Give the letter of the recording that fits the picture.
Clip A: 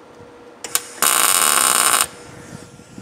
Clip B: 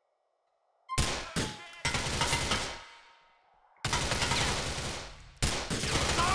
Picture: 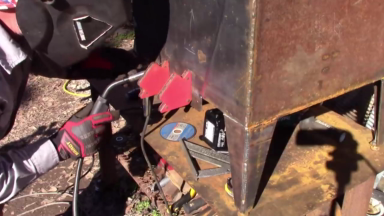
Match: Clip A